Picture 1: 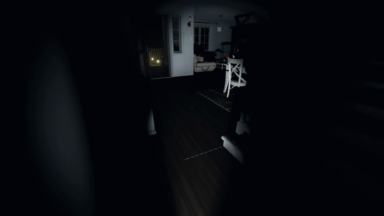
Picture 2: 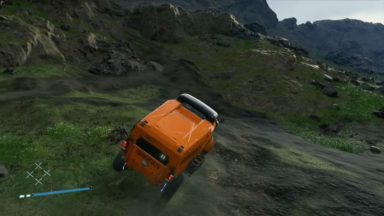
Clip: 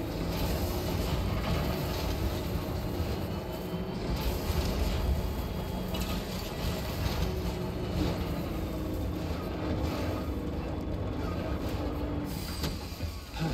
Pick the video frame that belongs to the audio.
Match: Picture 2